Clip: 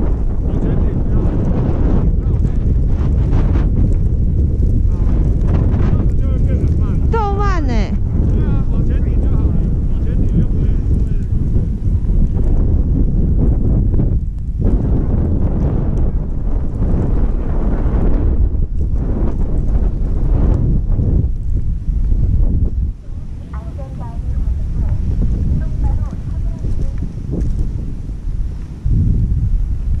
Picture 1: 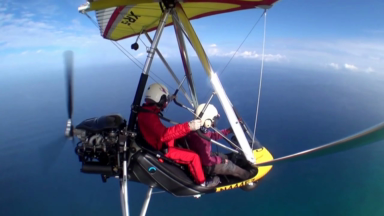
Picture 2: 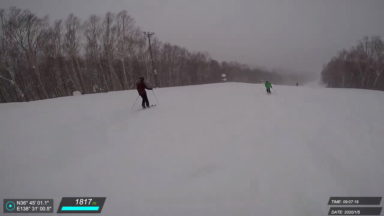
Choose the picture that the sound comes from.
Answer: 2